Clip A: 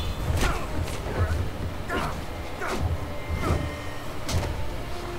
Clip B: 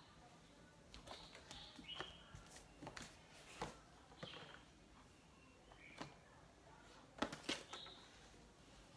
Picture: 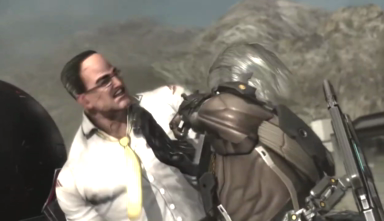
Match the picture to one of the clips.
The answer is A